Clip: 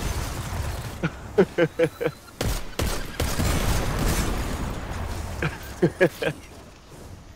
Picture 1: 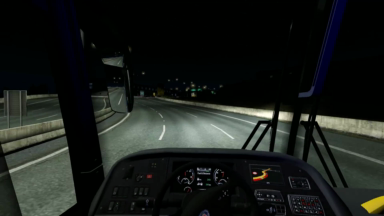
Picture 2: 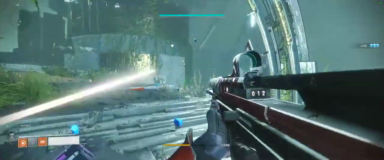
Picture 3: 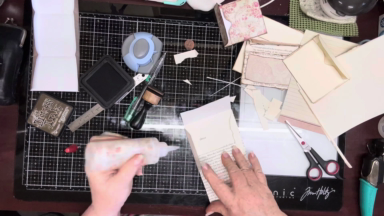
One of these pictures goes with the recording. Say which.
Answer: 2